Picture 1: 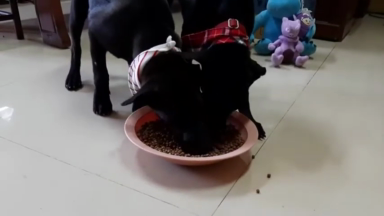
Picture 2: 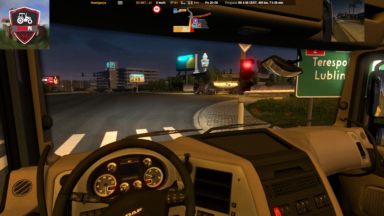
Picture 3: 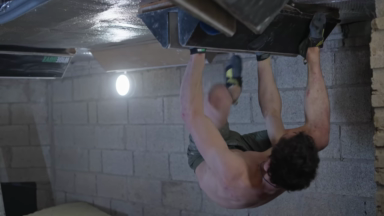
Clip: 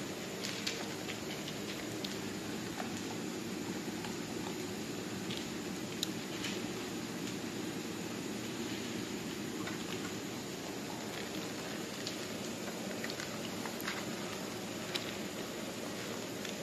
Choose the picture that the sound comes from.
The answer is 1